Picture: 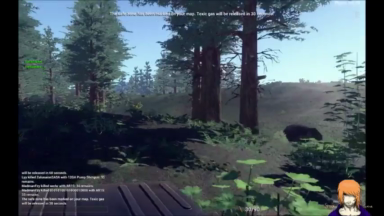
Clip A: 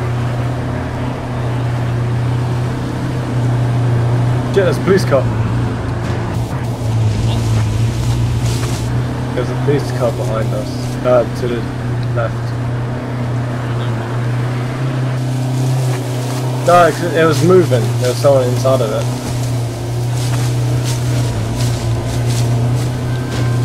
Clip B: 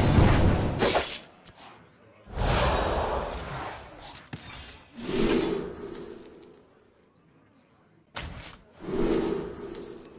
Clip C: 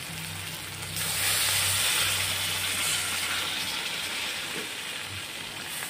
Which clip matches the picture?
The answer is A